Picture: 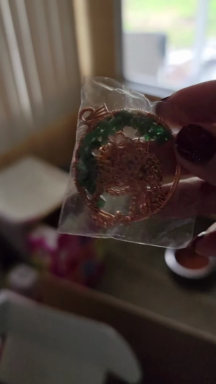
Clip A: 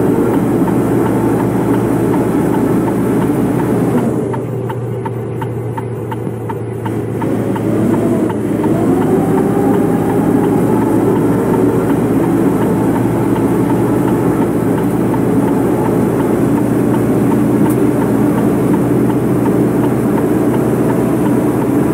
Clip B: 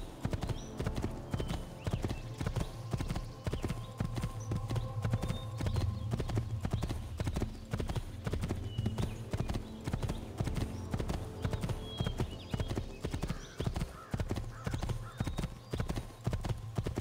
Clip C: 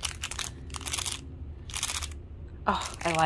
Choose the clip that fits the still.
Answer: C